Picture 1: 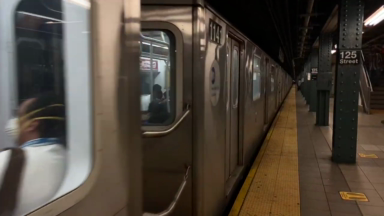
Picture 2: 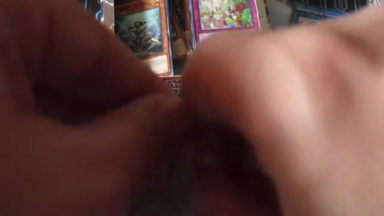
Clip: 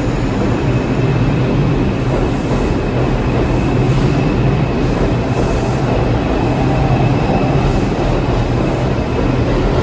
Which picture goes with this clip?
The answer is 1